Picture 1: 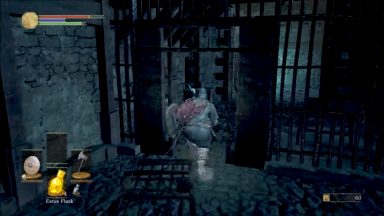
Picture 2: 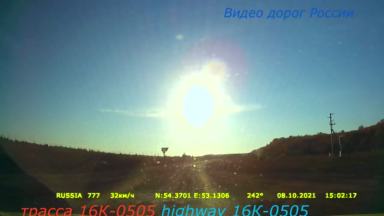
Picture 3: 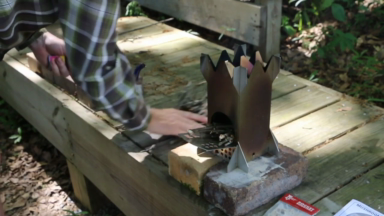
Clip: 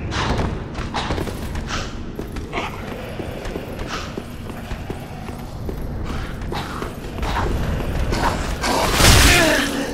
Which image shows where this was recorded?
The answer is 1